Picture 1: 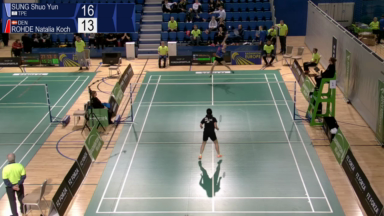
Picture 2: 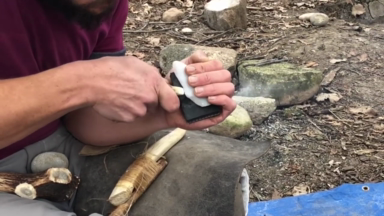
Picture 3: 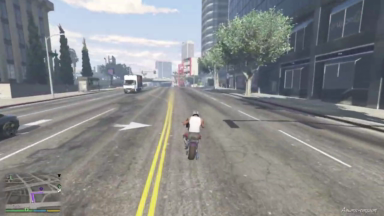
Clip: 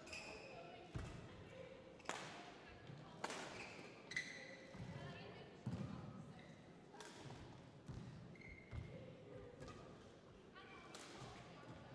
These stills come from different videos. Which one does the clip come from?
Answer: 1